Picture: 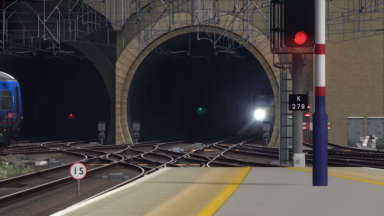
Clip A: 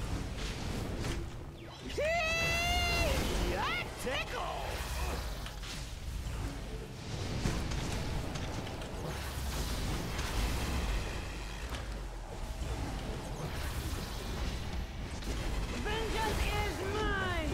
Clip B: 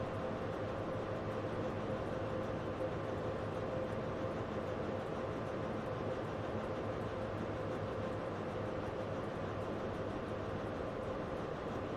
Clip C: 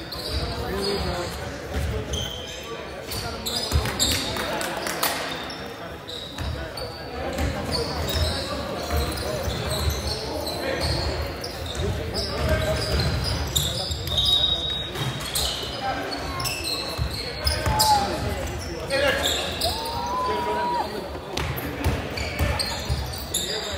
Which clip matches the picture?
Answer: B